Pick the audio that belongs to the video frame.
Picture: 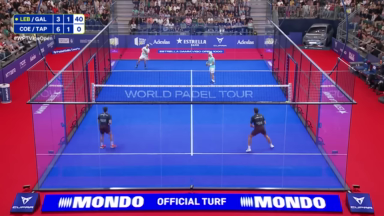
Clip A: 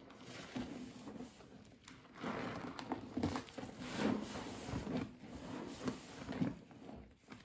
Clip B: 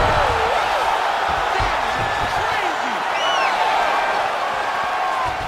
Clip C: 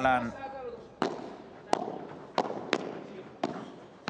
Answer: C